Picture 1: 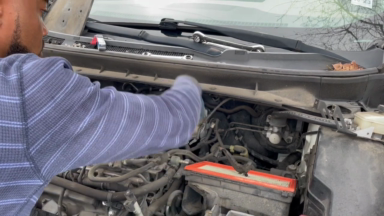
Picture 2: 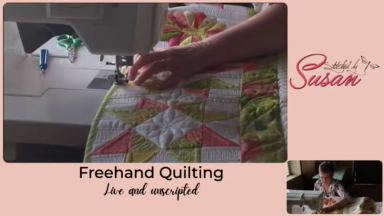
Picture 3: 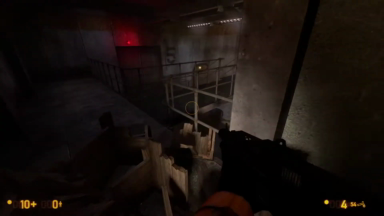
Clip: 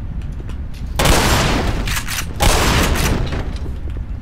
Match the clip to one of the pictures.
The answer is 3